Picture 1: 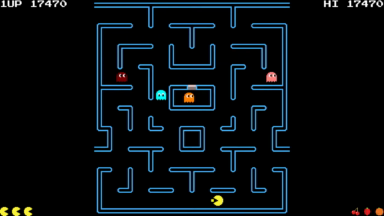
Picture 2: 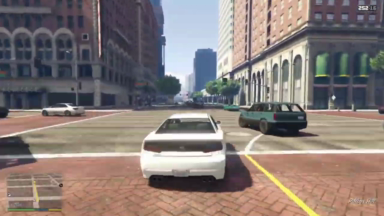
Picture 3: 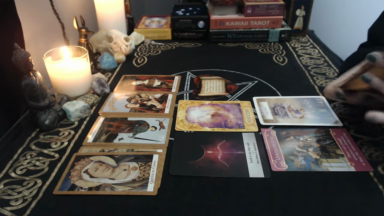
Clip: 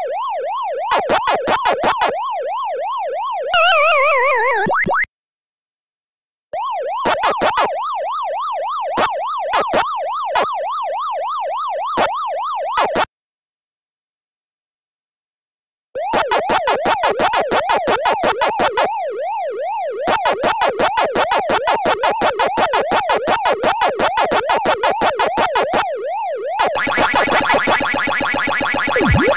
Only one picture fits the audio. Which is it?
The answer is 1